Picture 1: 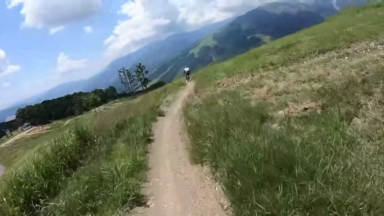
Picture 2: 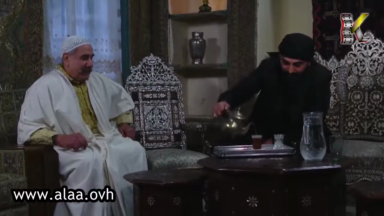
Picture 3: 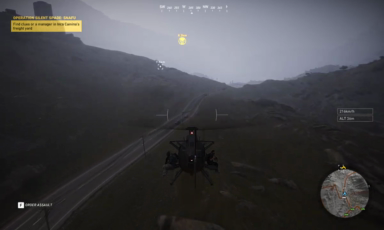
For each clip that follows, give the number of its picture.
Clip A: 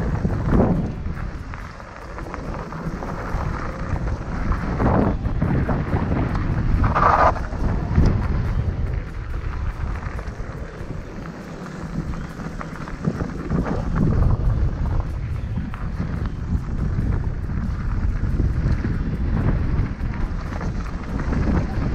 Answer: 1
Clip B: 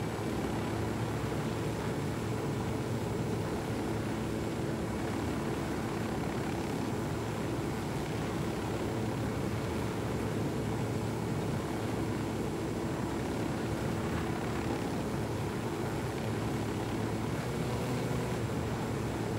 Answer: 3